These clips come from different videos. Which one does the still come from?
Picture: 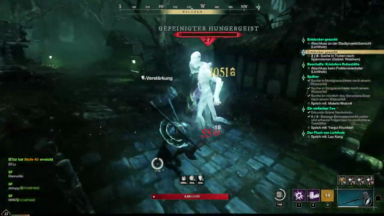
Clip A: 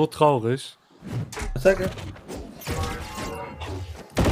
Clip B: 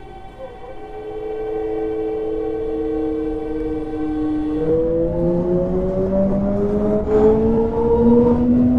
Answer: A